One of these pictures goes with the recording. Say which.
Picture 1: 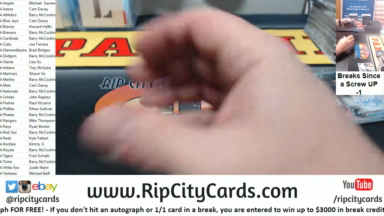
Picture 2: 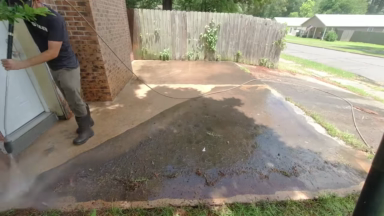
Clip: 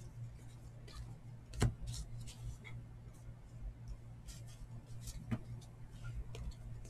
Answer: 1